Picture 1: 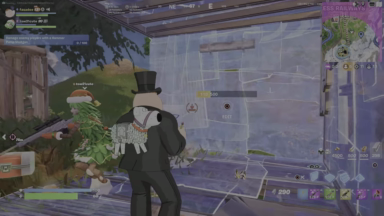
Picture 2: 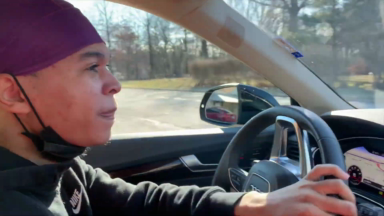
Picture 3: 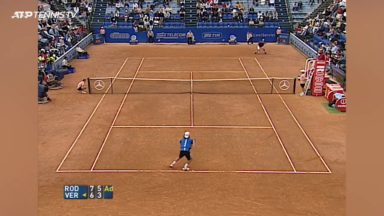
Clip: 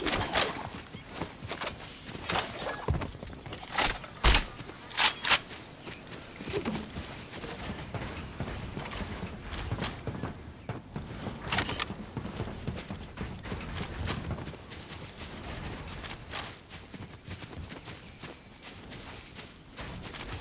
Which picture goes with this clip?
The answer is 1